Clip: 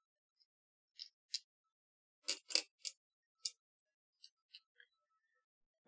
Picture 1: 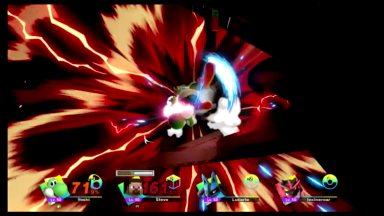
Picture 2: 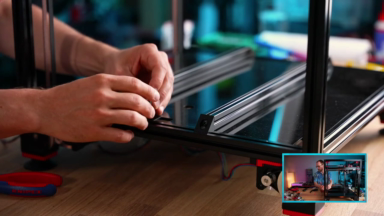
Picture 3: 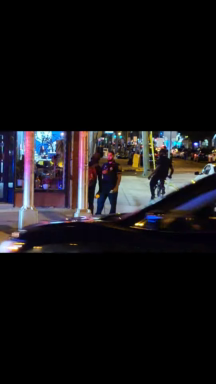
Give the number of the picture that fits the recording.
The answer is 2